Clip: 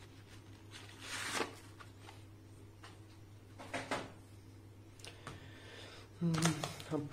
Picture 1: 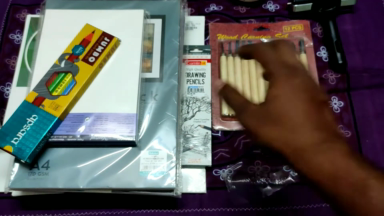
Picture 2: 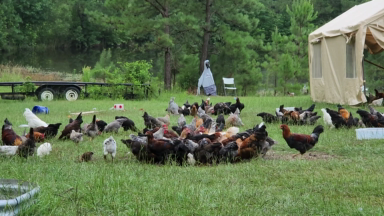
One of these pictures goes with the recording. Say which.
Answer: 1